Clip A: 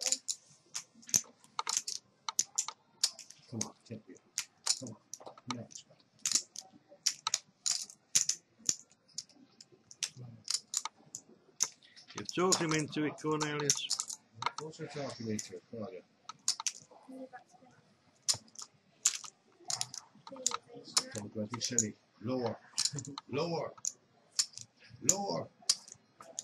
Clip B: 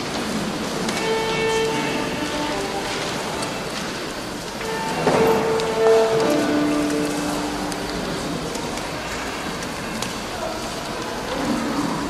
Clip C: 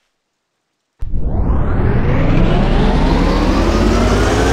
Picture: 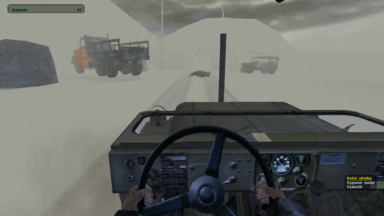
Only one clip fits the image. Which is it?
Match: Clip C